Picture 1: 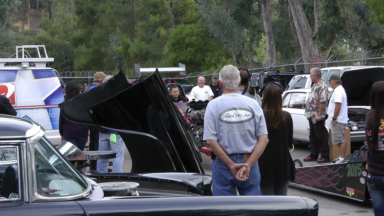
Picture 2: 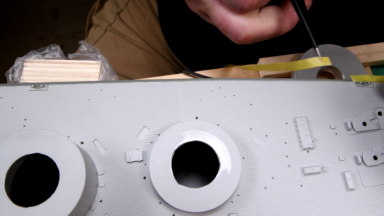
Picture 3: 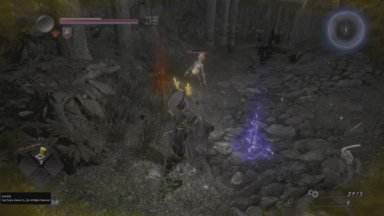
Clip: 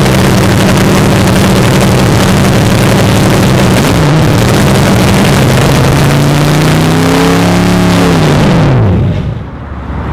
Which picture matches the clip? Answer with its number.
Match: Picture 1